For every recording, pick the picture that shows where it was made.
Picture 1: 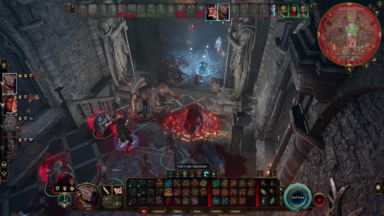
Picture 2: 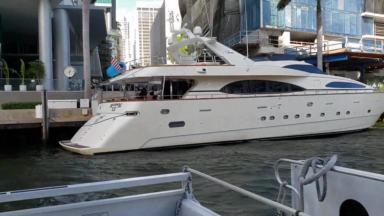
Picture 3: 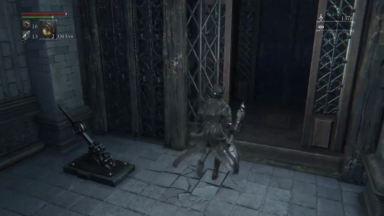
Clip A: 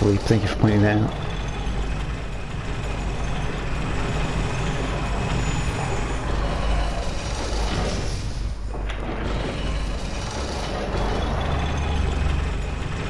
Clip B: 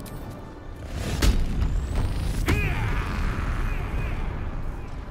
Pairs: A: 3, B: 1